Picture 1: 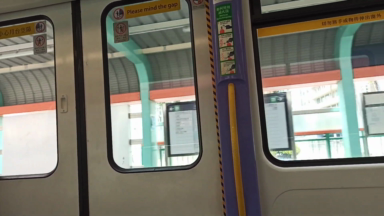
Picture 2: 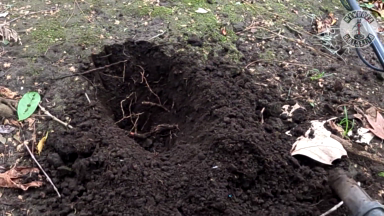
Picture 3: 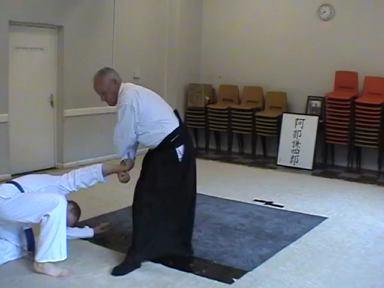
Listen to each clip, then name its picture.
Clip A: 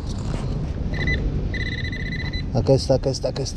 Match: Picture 2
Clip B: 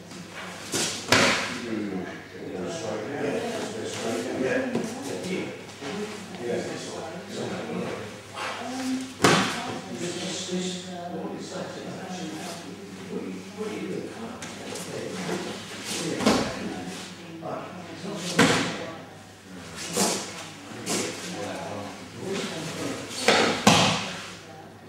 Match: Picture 3